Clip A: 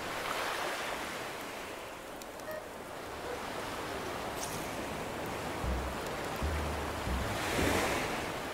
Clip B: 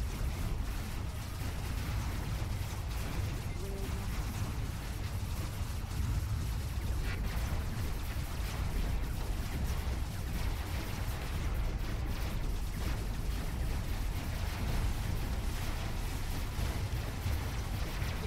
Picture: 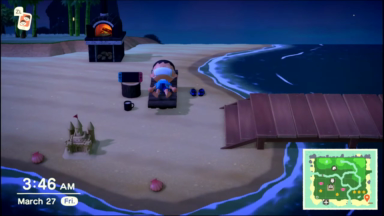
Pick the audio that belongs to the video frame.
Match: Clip A